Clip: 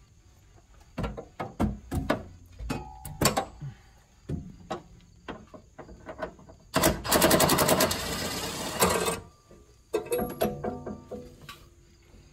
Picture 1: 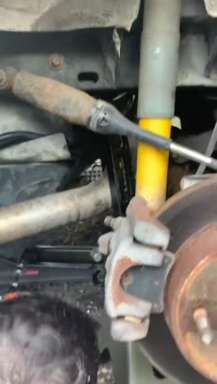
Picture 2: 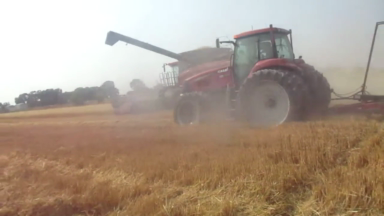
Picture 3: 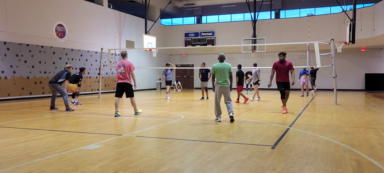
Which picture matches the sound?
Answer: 1